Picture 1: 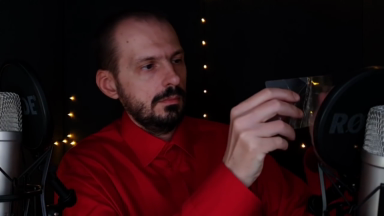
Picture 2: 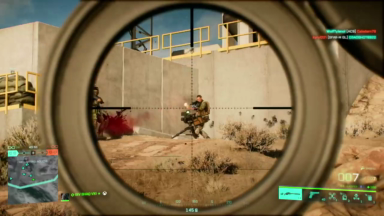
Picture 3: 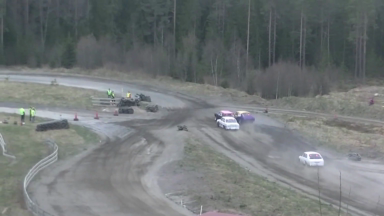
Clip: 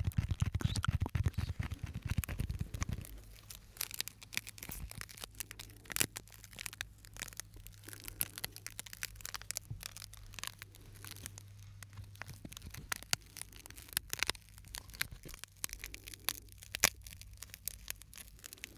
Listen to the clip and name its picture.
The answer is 1